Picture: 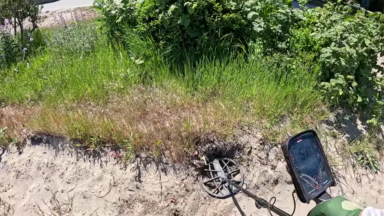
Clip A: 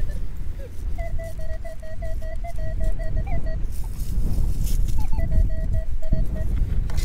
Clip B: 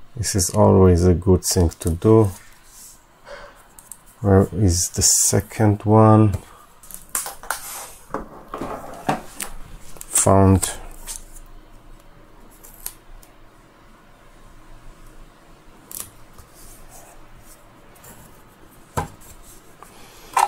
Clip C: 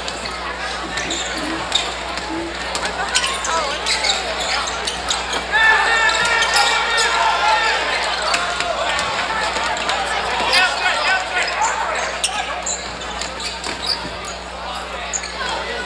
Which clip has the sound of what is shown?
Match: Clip A